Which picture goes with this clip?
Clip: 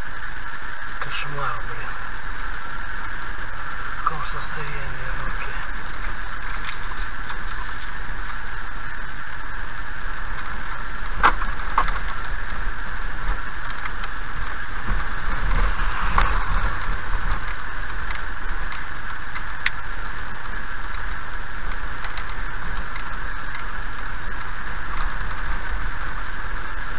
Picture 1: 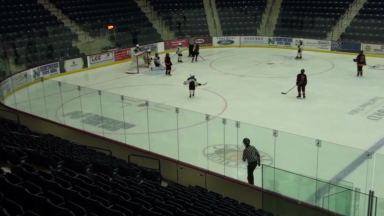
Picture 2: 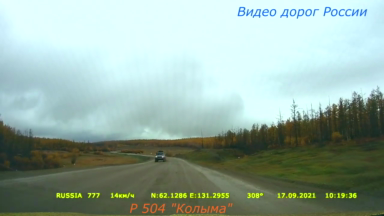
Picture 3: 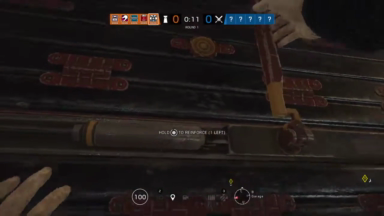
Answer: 2